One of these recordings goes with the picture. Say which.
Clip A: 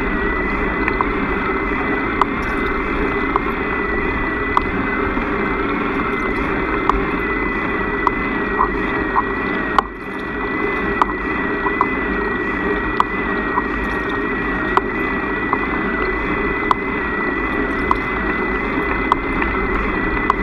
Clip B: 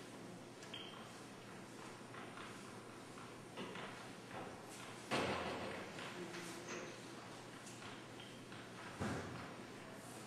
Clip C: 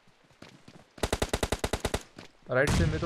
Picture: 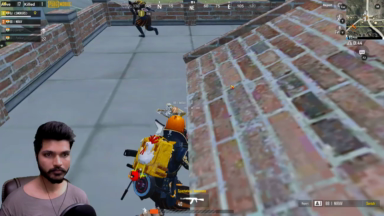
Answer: C